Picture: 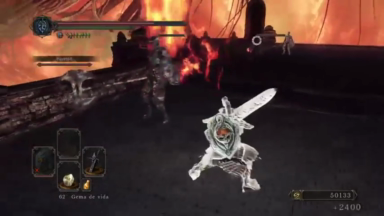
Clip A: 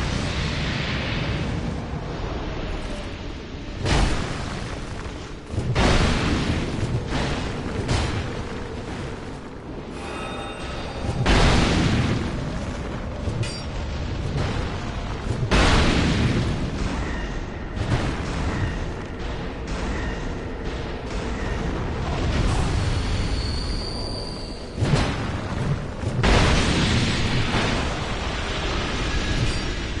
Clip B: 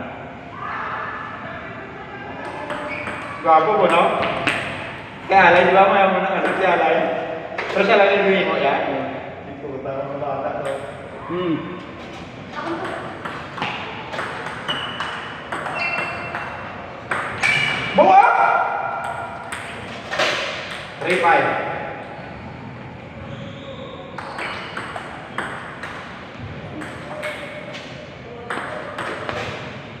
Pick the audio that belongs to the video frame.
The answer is A